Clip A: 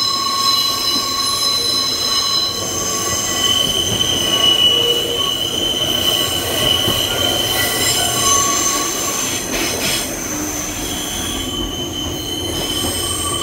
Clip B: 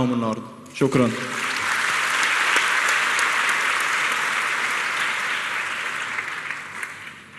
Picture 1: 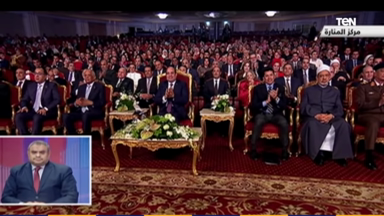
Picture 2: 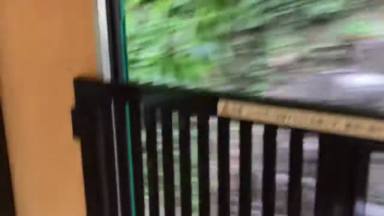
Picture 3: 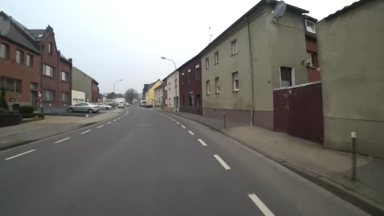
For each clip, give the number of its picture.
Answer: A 2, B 1